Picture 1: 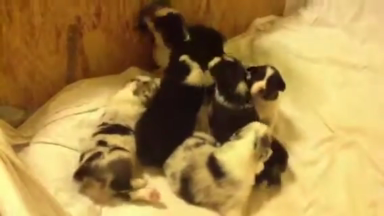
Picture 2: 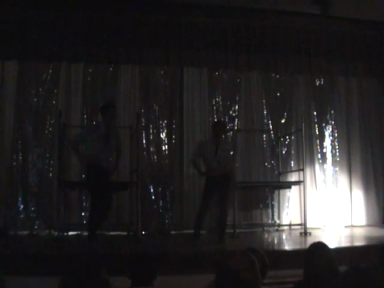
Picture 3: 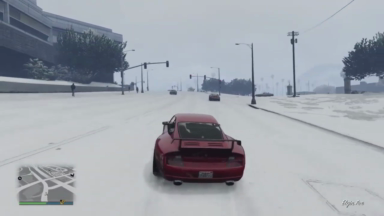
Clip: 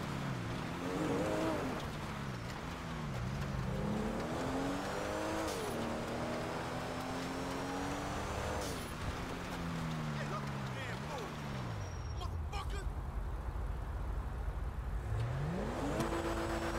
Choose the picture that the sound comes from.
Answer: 3